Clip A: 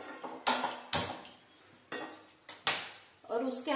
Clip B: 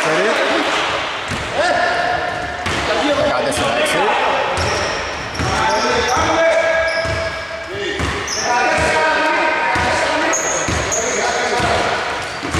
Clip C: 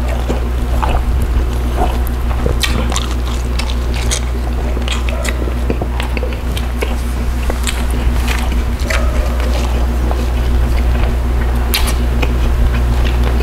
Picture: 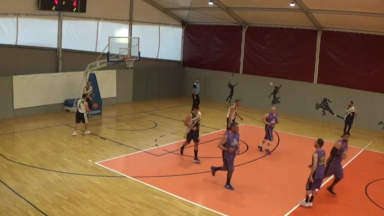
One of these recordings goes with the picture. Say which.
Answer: B